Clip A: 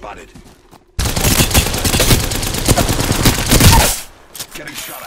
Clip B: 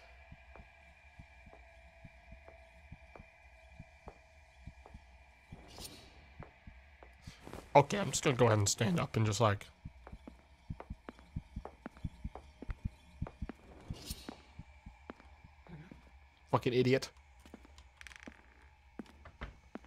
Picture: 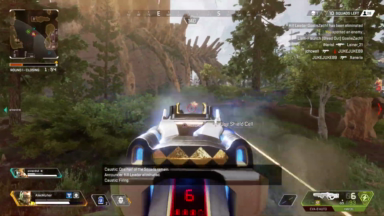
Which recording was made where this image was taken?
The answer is A